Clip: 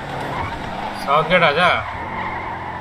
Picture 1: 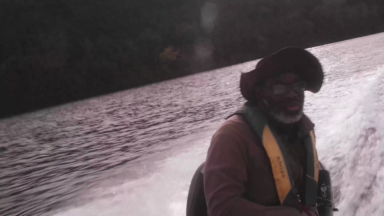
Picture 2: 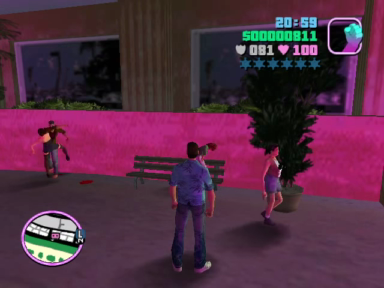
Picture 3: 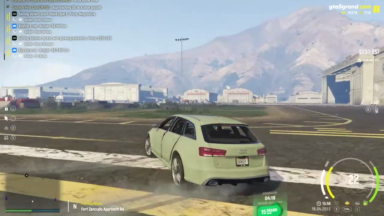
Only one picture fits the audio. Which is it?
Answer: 3